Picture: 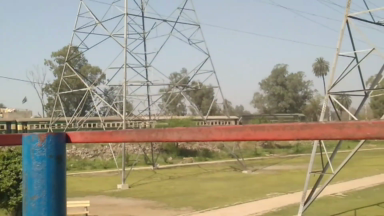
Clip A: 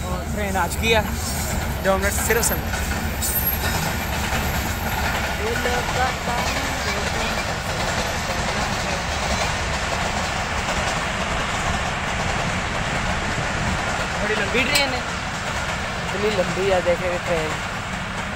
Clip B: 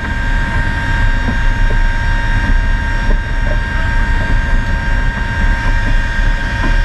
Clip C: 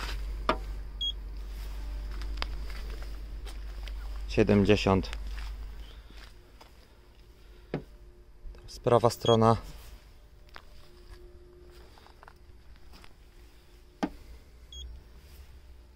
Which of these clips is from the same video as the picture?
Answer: A